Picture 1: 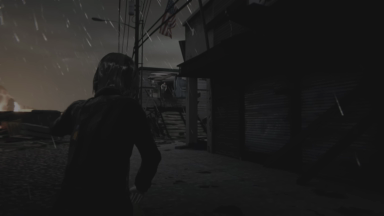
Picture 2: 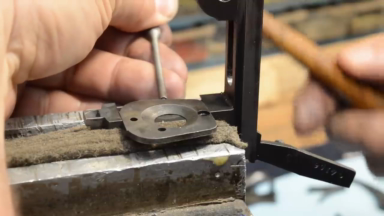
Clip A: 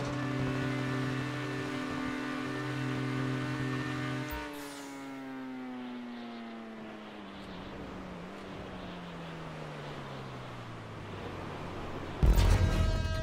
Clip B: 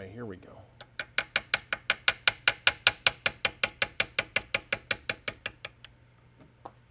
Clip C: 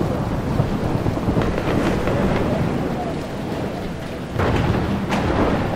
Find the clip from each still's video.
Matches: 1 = C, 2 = B